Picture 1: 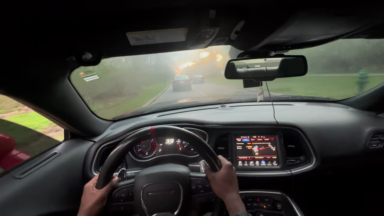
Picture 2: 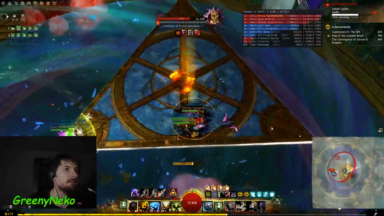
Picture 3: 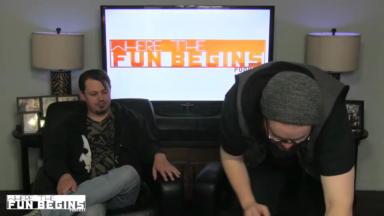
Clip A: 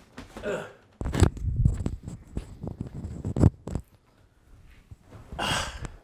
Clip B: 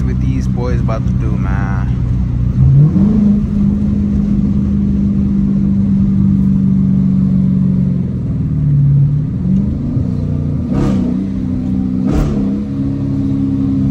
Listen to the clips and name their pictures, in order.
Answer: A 3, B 1